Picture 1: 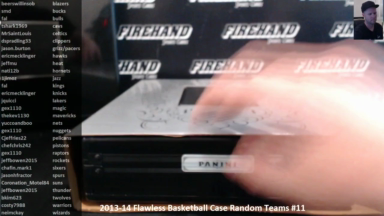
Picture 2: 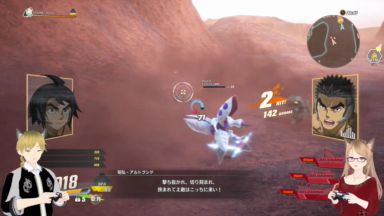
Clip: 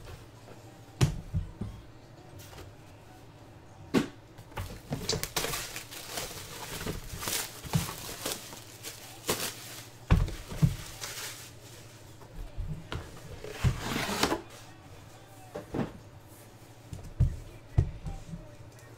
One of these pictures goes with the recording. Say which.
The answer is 1